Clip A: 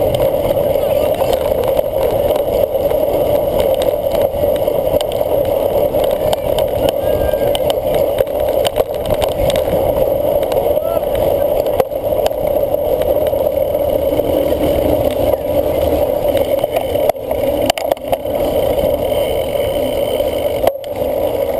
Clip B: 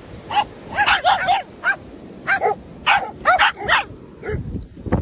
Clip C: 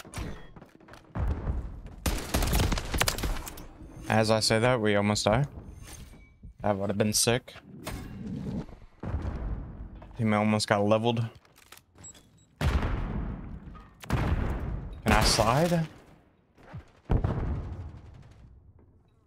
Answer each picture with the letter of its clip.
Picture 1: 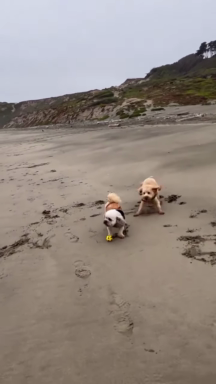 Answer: B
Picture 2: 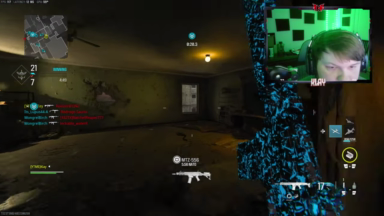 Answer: C